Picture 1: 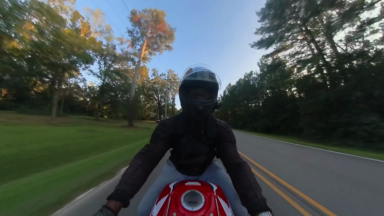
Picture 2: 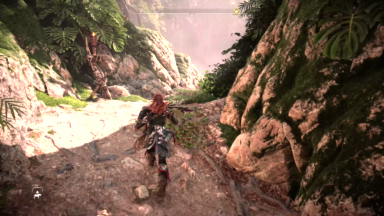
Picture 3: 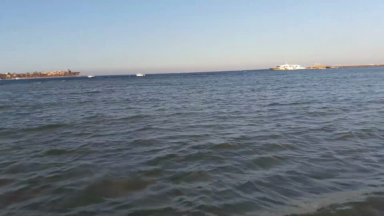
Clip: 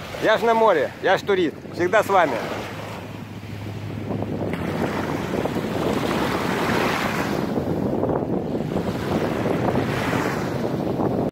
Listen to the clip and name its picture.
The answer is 3